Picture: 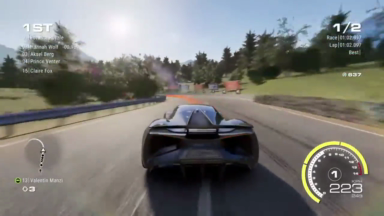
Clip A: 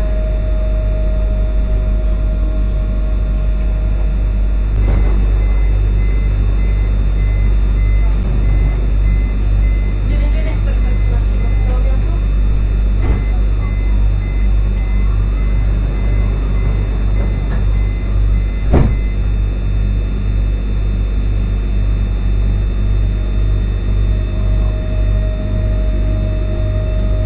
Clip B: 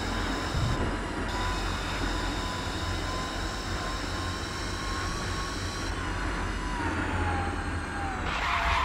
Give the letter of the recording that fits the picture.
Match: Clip B